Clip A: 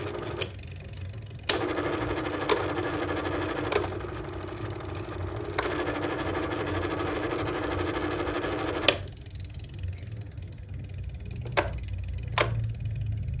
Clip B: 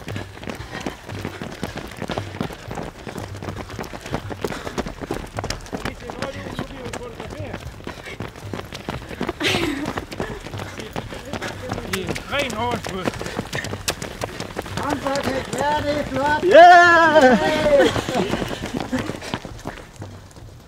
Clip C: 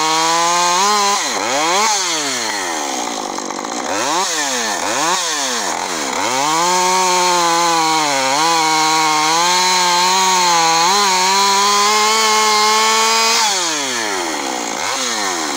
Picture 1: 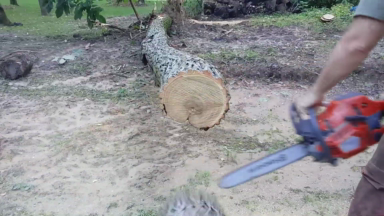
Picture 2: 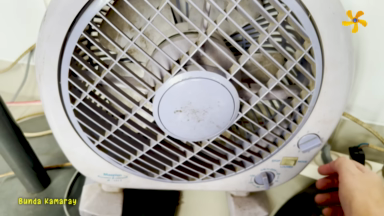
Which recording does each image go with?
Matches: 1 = C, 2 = A